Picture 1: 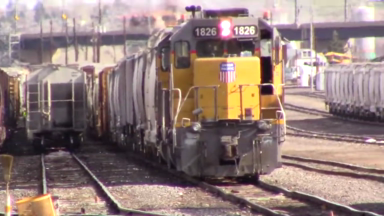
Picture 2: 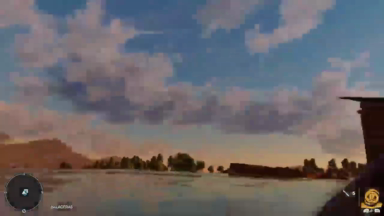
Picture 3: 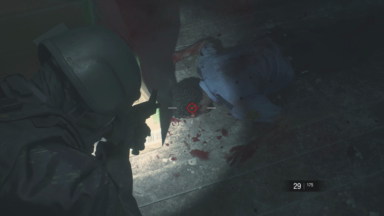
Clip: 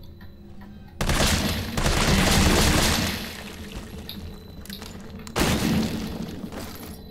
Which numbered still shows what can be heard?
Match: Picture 3